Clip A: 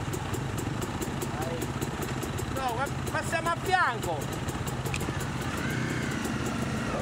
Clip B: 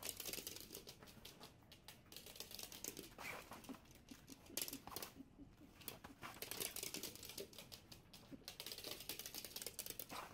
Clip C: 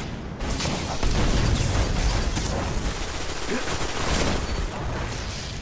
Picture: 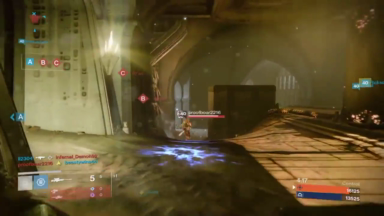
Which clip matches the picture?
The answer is C